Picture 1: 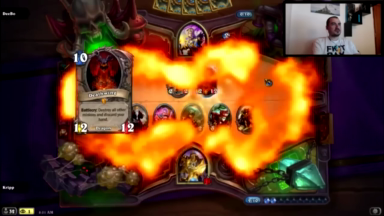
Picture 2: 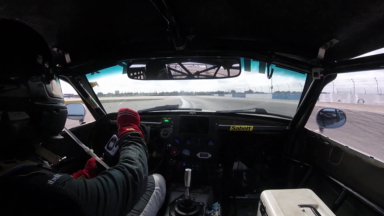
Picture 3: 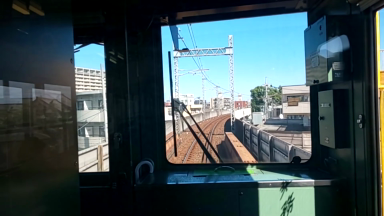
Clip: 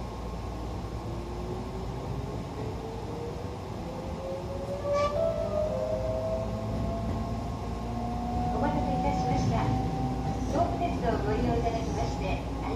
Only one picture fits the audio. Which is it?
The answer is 3